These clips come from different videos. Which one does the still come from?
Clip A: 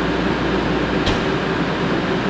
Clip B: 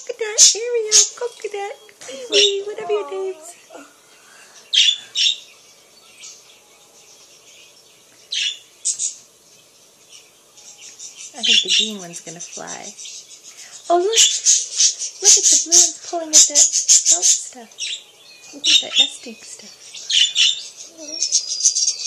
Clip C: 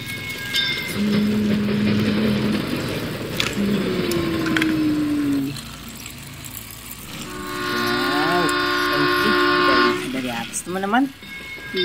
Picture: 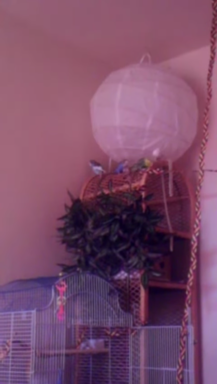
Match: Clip B